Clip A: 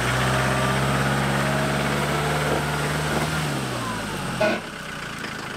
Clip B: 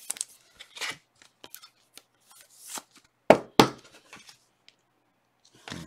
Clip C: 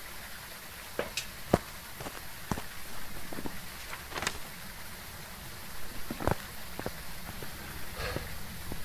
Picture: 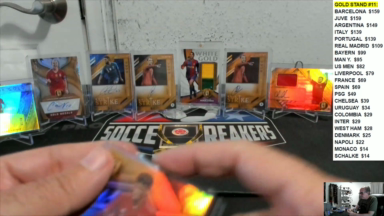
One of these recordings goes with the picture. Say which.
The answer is B